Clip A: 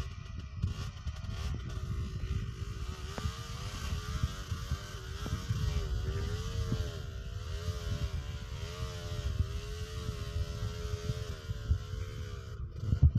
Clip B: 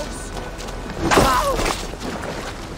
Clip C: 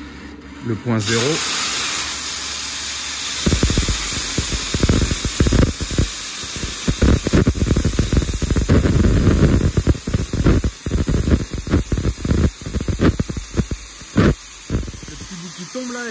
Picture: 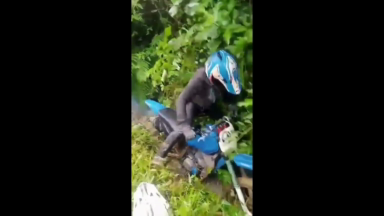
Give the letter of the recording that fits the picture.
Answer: A